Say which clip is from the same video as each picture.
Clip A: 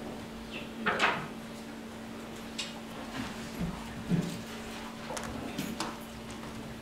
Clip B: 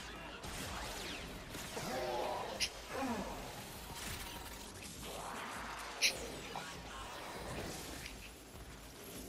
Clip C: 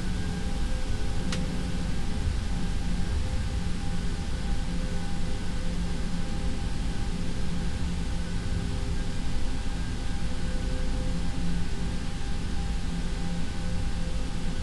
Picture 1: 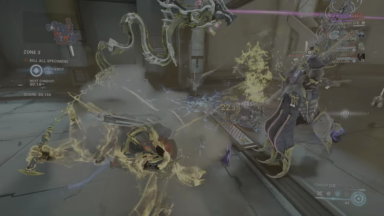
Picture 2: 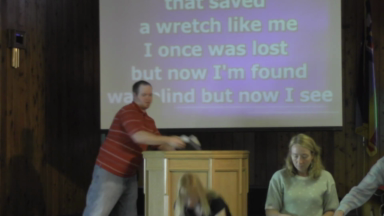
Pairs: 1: B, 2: A